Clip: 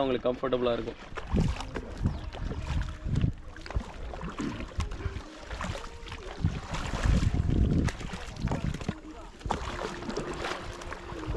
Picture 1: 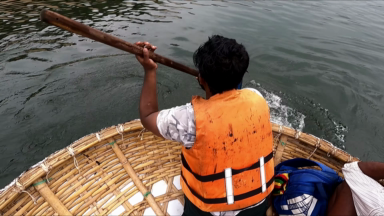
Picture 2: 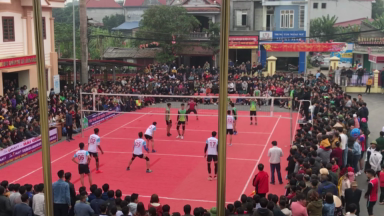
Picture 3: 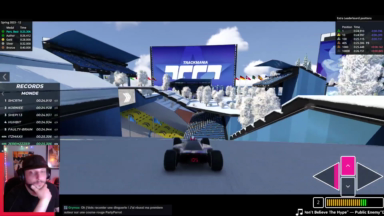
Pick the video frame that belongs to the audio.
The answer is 1